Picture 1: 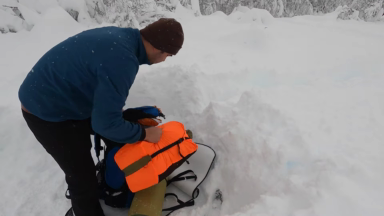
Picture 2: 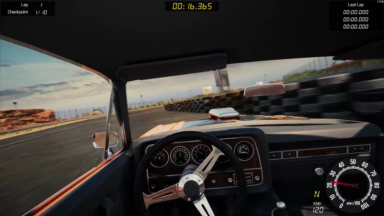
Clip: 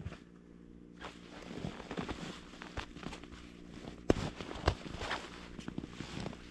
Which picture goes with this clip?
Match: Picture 1